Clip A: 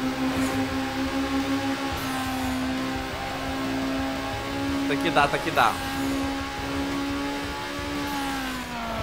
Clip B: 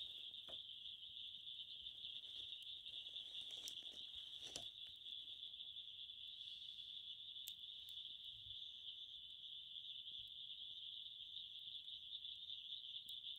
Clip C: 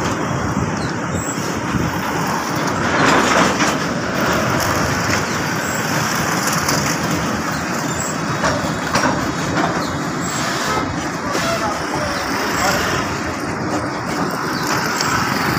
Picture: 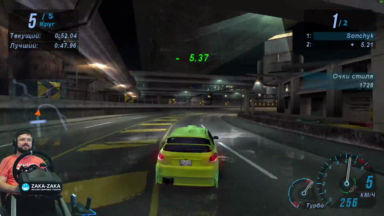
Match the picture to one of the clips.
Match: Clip A